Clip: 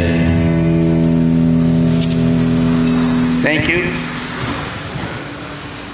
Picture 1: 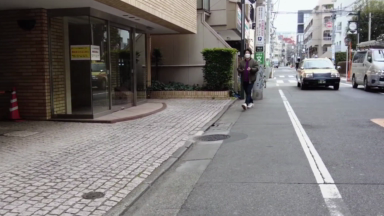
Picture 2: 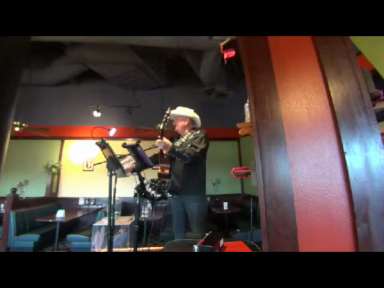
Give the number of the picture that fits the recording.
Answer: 2